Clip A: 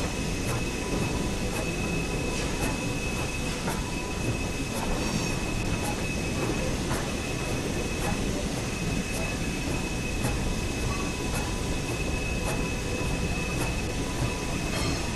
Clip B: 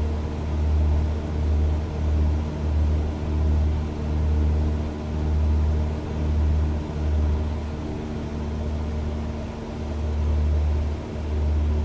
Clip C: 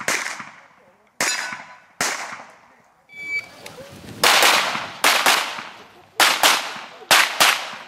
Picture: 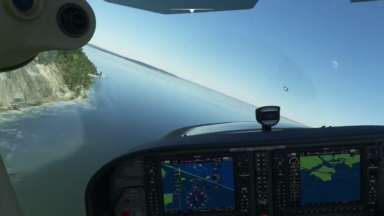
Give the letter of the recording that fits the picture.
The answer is B